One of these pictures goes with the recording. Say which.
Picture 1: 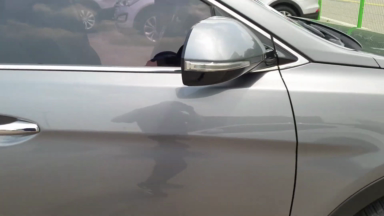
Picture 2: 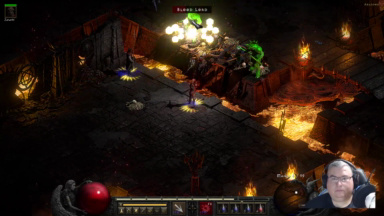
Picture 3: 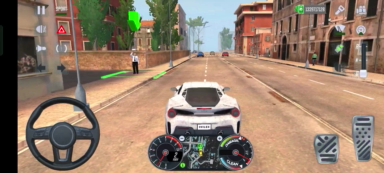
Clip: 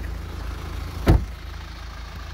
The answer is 1